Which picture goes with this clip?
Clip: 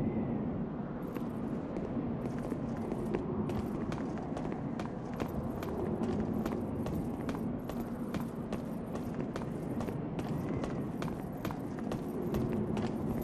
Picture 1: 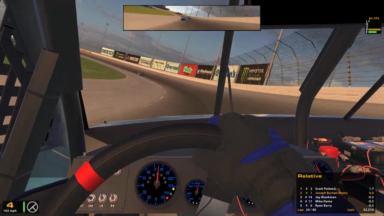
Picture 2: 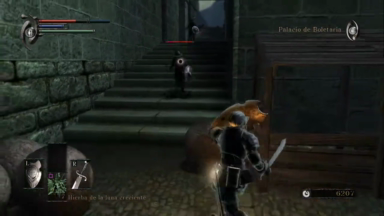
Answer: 2